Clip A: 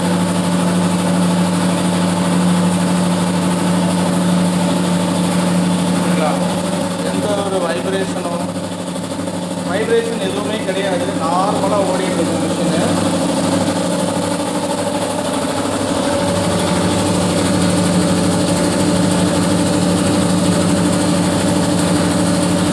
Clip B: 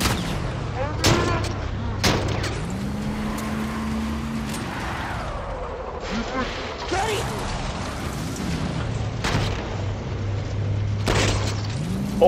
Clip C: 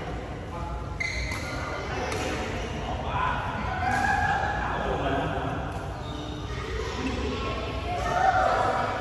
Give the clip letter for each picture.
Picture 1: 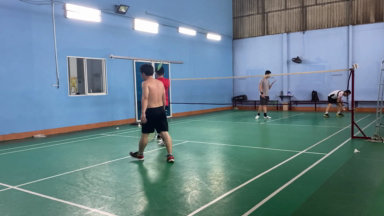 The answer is C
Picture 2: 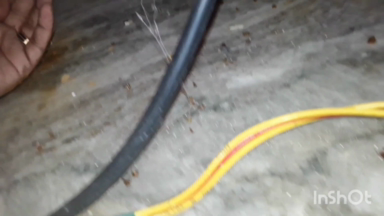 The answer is A